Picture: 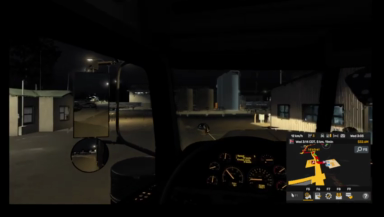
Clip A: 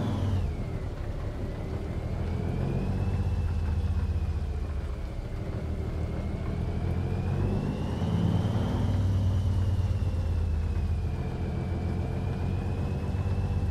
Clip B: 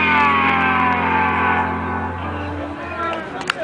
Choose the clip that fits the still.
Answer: A